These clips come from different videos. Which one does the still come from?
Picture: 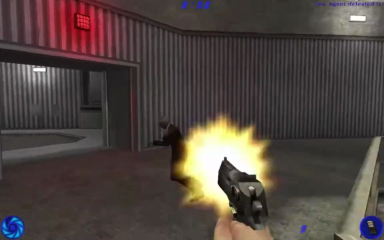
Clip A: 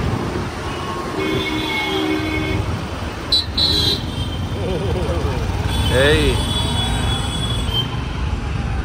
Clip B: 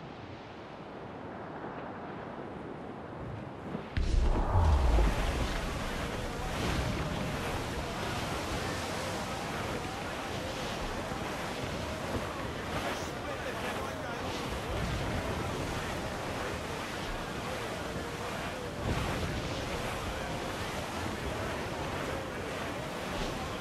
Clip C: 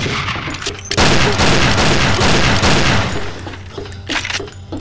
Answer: C